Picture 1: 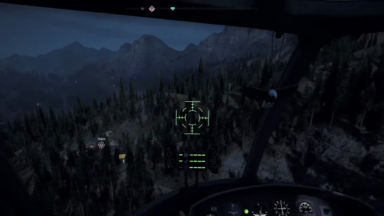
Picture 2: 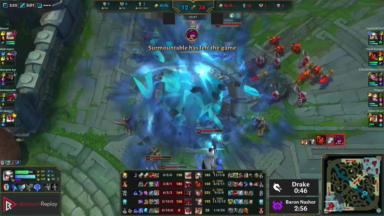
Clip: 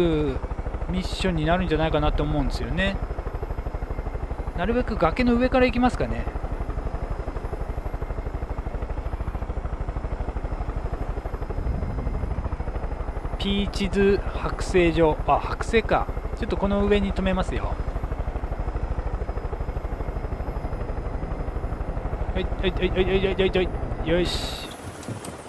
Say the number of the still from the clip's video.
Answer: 1